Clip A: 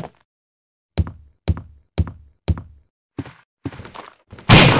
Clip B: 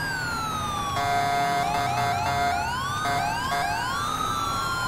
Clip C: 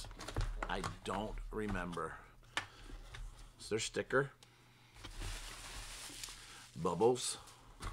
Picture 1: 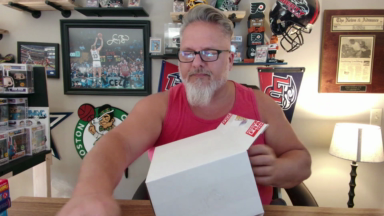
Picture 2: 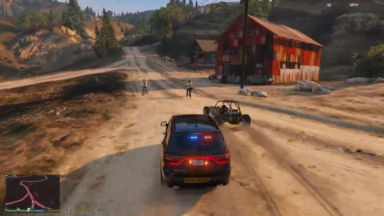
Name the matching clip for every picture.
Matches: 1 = C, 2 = B